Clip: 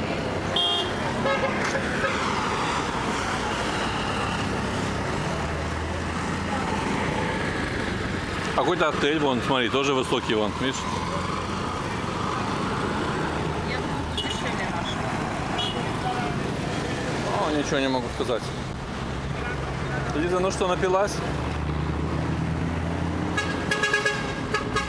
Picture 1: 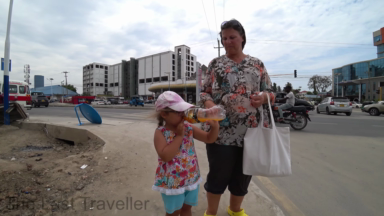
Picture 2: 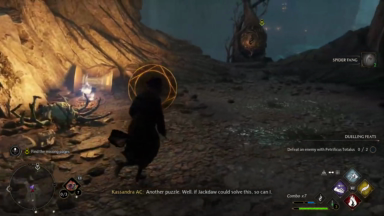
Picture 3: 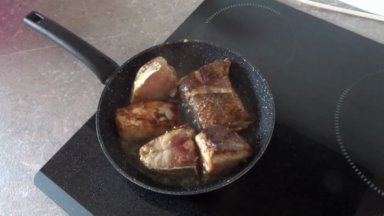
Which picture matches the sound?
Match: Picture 1